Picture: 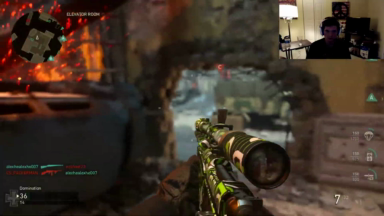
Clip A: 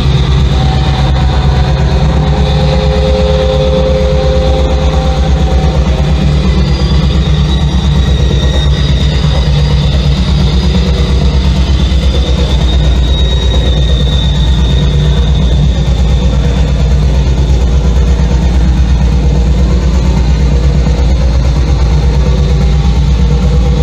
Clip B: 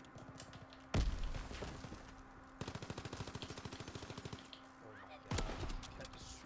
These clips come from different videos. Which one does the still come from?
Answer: B